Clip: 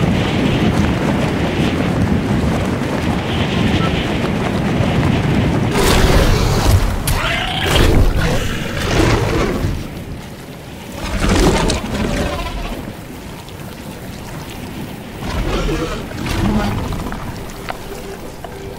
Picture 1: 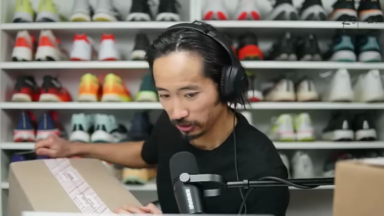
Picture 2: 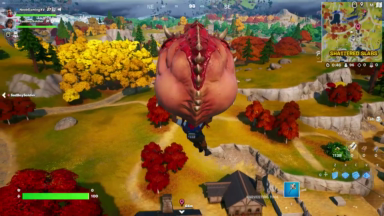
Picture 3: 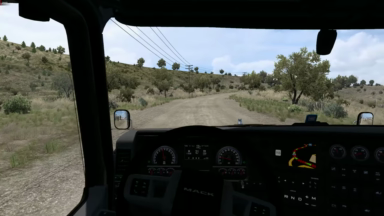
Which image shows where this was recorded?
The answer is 2